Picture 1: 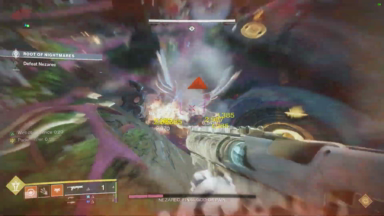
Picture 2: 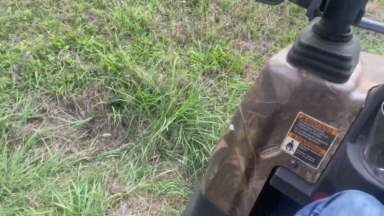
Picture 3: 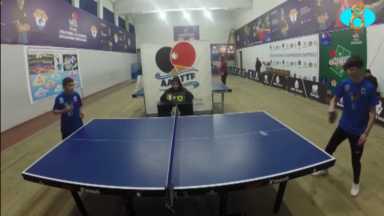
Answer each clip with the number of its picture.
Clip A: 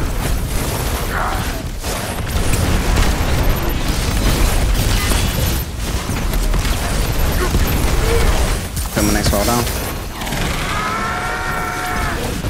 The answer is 1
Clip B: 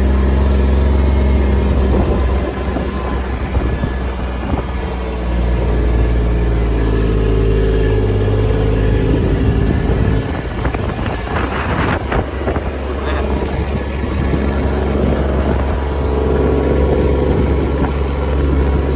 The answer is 2